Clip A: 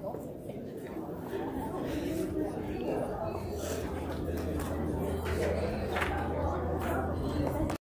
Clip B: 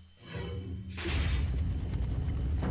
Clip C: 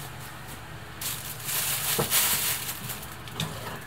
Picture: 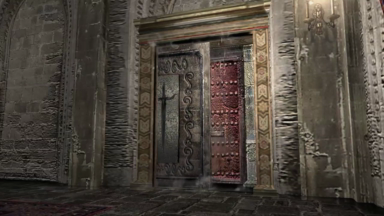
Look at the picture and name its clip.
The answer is B